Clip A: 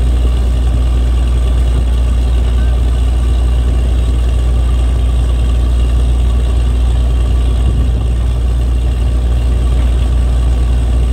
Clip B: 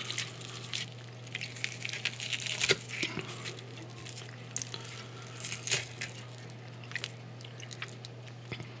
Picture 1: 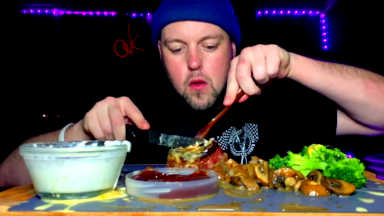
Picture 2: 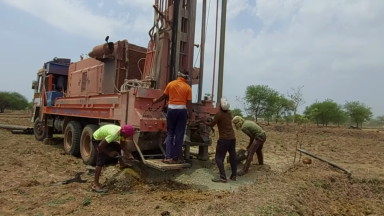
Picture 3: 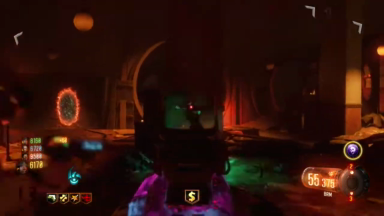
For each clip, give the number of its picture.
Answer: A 2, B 1